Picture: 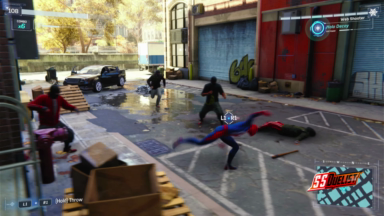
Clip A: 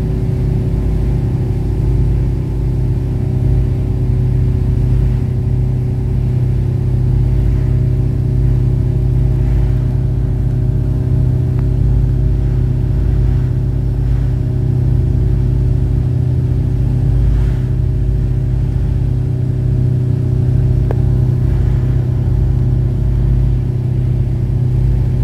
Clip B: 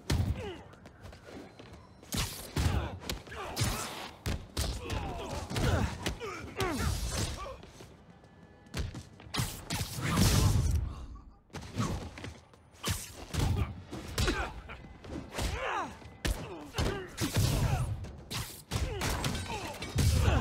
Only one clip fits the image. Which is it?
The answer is B